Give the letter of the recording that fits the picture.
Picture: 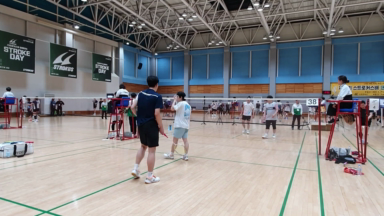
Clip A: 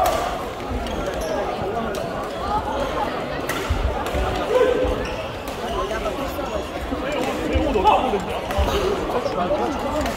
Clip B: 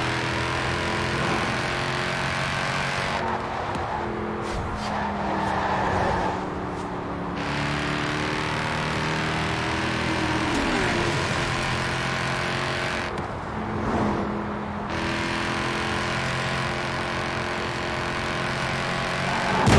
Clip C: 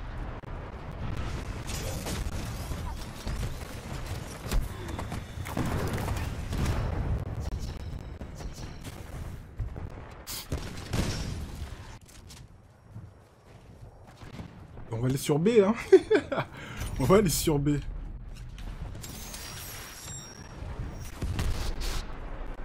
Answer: A